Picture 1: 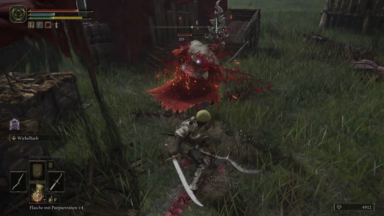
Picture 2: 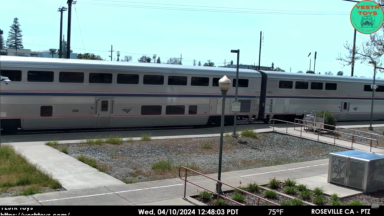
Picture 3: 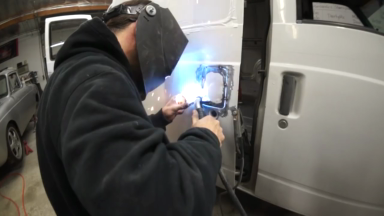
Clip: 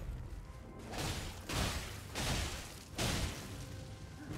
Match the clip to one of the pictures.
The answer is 1